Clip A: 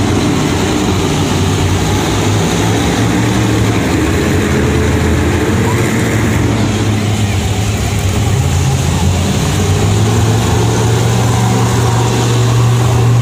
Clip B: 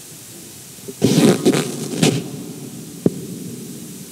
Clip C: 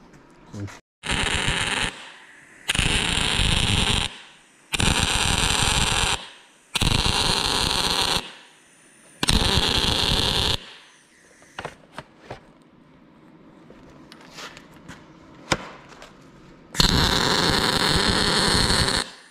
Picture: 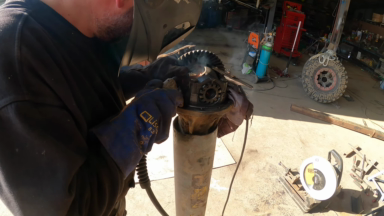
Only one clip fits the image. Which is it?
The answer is C